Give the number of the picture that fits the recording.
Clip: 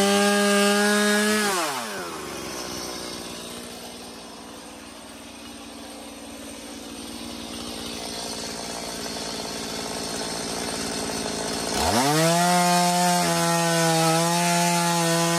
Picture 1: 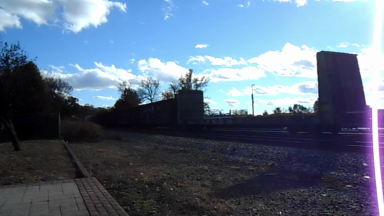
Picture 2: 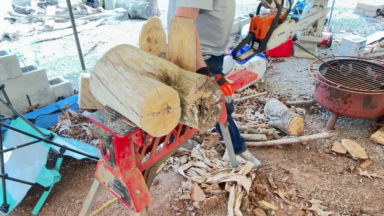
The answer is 2